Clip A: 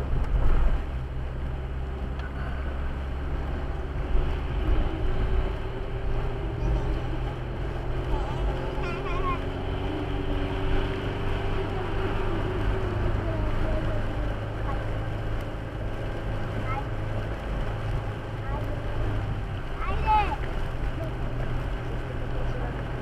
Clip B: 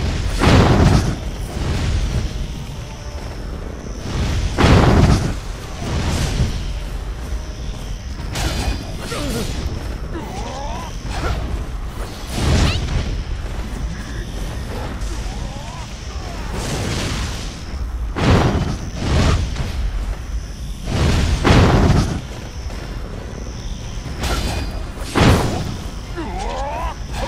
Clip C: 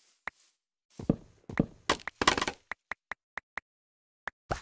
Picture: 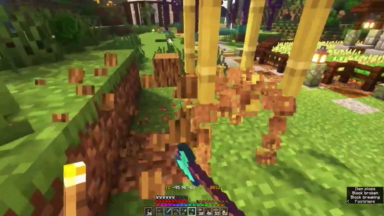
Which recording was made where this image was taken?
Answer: C